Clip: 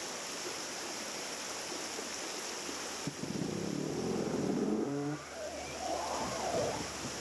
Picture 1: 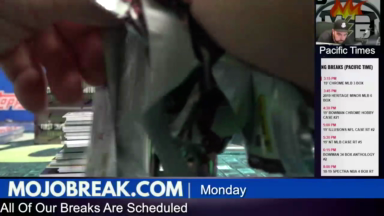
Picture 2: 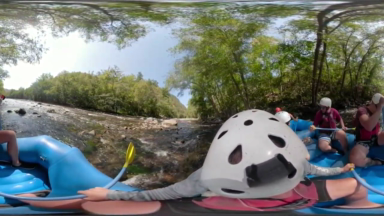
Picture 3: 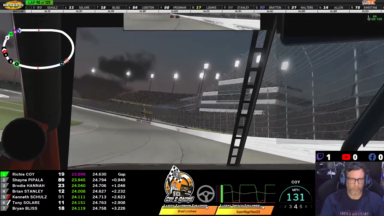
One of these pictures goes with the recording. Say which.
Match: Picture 2